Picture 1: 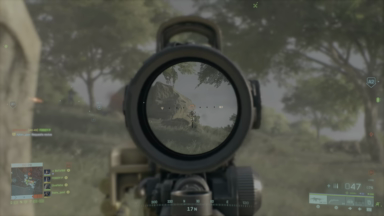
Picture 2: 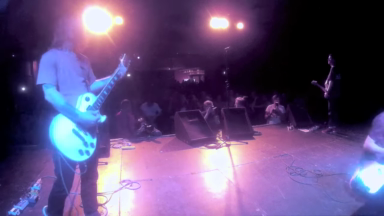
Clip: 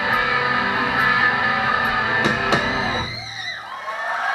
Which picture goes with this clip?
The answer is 2